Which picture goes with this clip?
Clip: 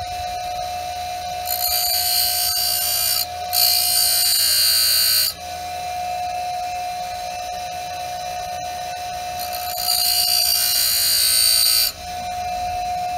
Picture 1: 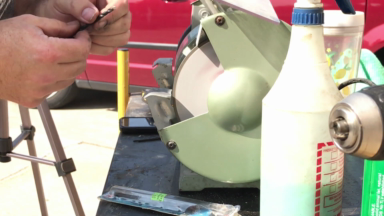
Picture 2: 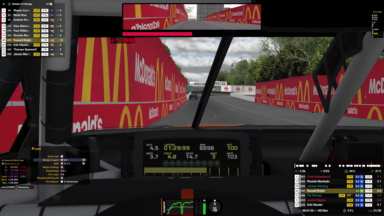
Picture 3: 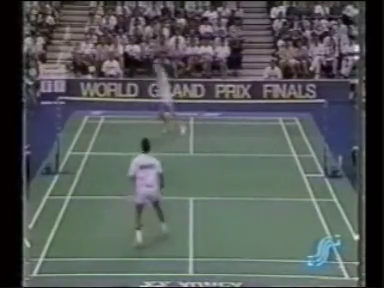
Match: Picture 1